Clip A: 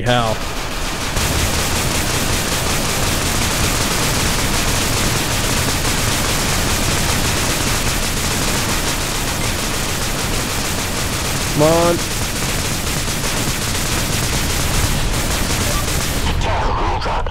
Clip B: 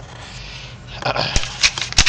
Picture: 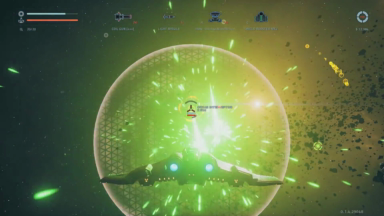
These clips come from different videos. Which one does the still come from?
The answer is A